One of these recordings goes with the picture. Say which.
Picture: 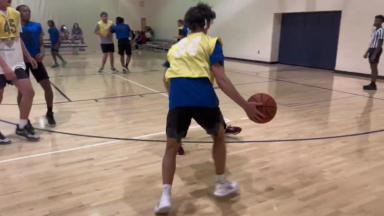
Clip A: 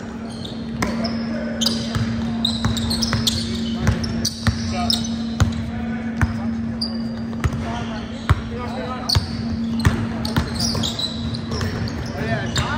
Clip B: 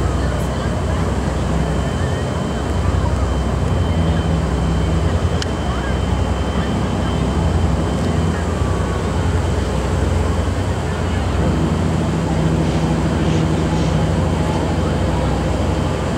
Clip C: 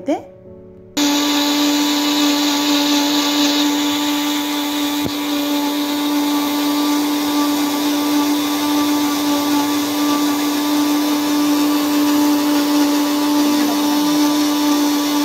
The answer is A